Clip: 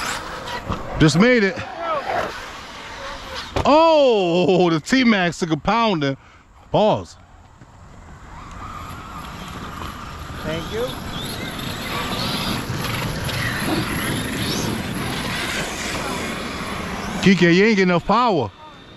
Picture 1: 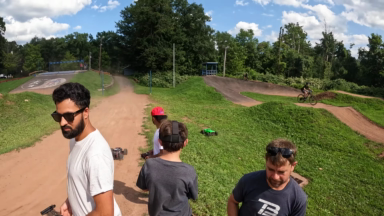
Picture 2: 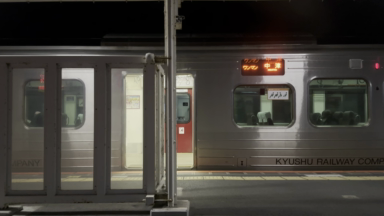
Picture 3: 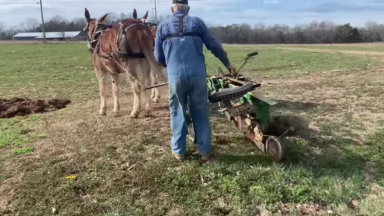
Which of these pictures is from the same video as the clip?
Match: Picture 1